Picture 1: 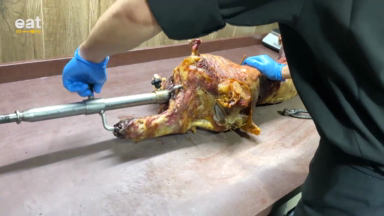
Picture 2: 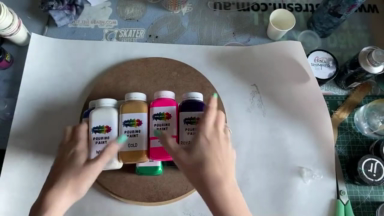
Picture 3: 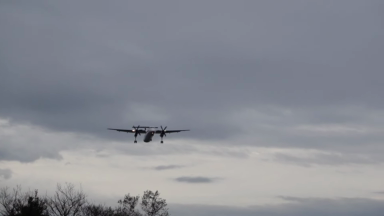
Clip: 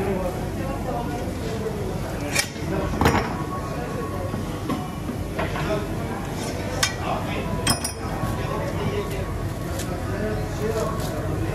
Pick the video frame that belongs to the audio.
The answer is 1